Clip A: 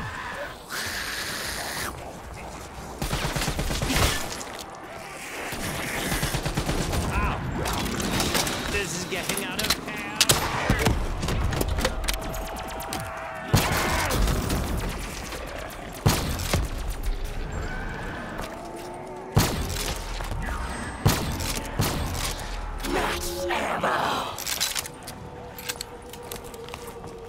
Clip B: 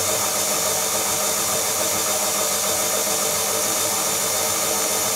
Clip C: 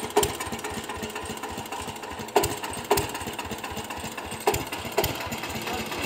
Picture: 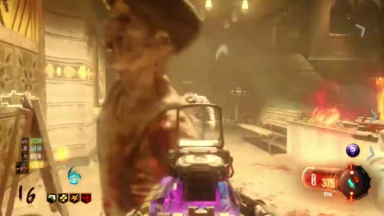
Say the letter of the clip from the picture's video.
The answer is A